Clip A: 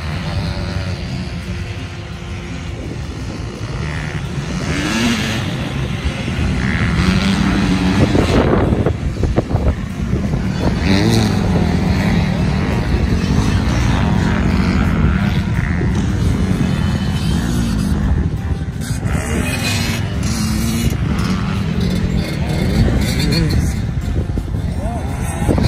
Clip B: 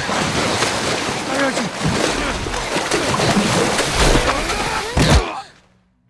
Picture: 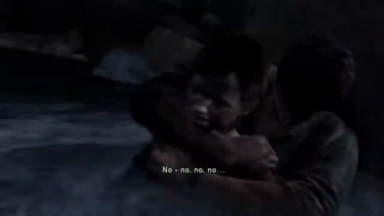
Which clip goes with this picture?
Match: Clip B